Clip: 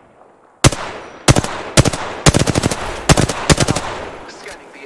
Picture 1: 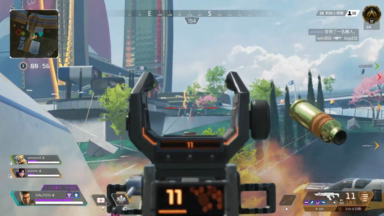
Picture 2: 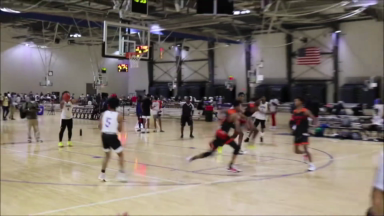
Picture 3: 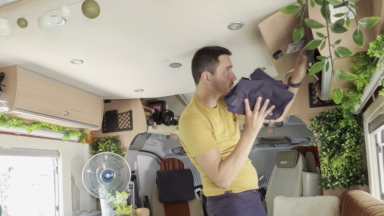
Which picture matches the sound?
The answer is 1